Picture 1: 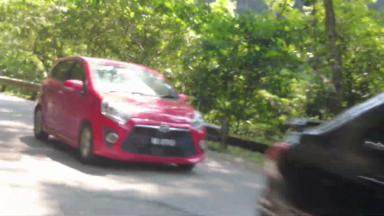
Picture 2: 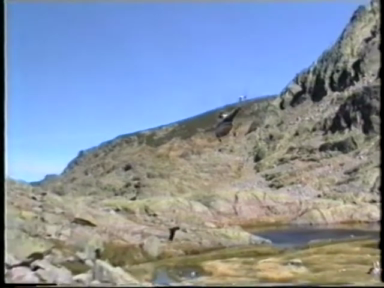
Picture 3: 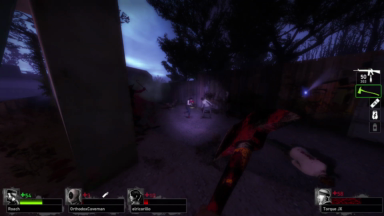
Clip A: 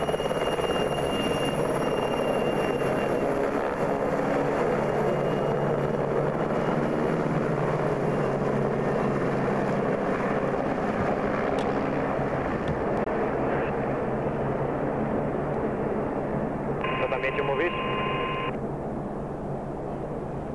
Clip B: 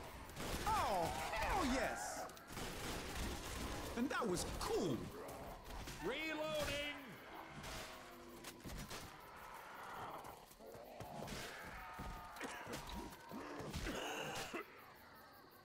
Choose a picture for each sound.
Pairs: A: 2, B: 3